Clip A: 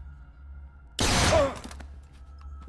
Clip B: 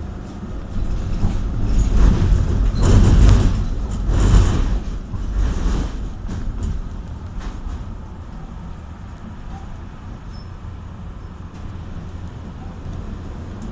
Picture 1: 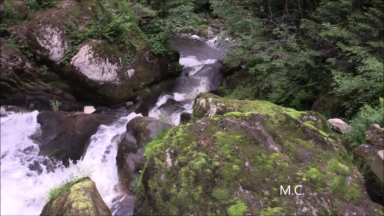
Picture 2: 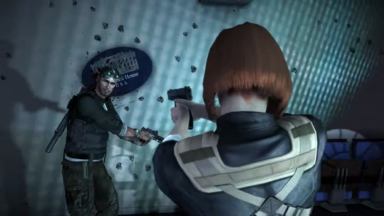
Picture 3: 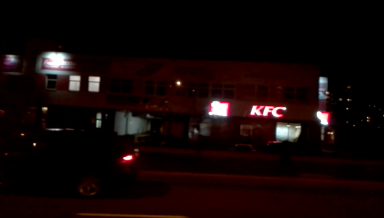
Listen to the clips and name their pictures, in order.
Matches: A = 2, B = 3